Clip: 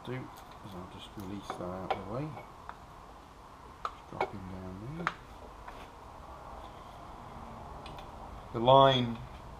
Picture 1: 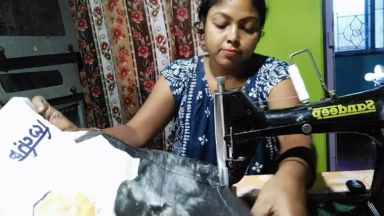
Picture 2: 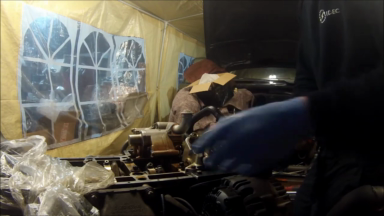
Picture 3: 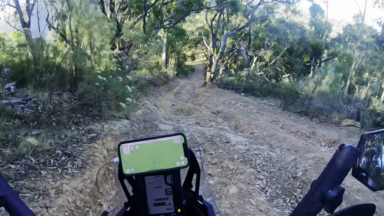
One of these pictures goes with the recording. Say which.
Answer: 2